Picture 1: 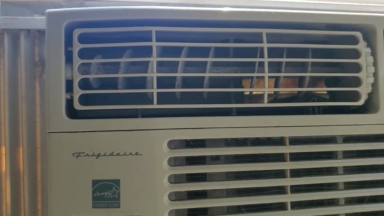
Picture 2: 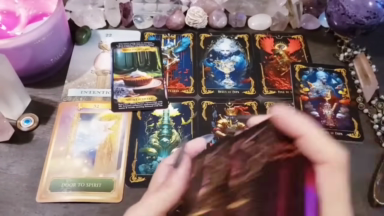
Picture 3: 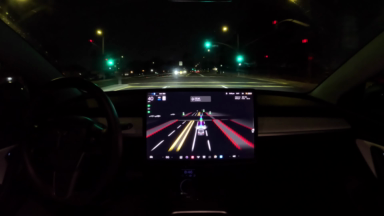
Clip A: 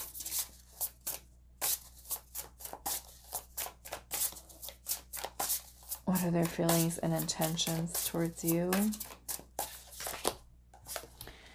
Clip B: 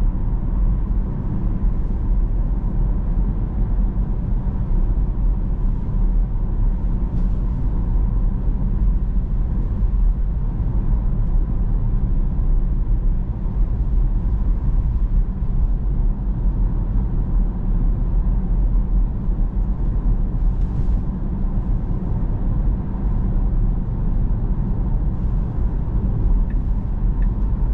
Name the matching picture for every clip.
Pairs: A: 2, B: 3